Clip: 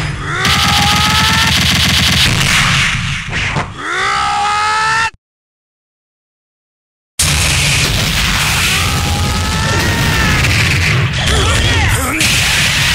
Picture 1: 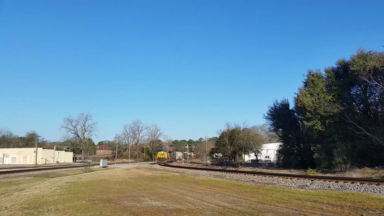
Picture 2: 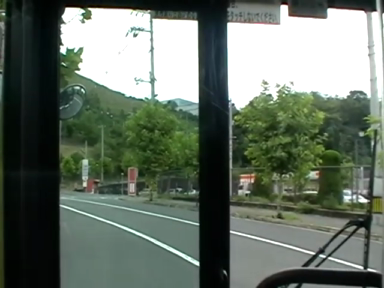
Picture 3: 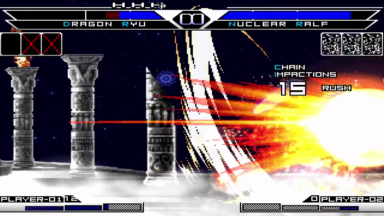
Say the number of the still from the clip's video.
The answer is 3